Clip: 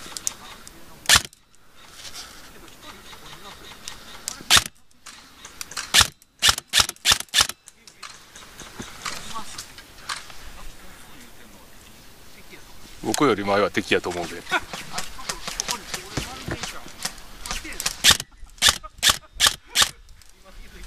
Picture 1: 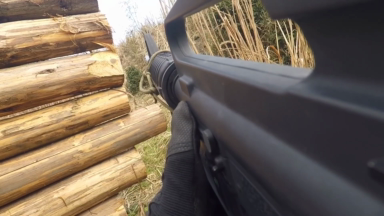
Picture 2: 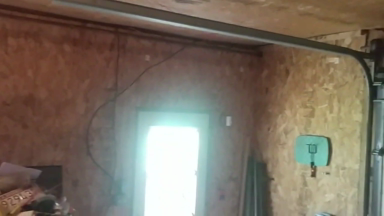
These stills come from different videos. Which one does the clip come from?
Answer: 1